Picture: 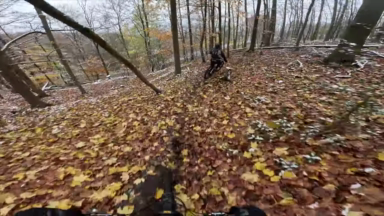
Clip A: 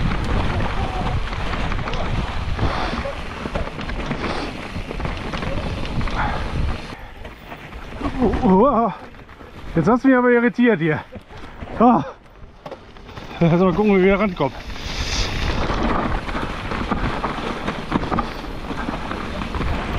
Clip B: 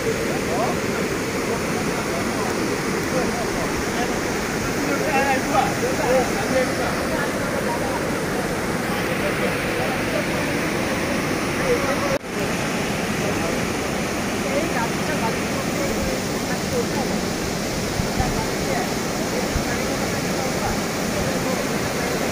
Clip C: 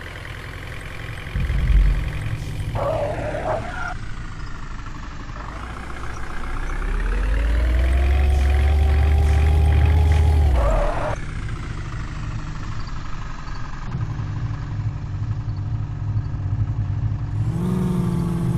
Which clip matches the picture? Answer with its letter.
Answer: A